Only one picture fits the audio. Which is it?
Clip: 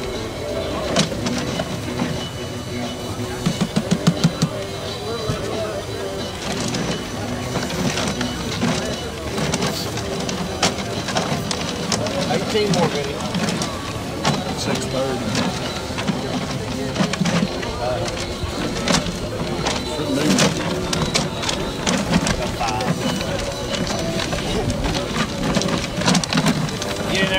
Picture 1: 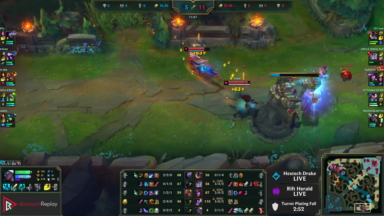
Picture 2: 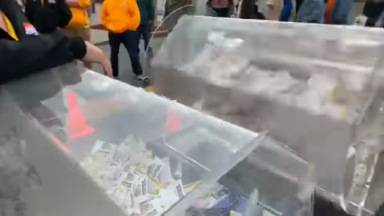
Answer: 2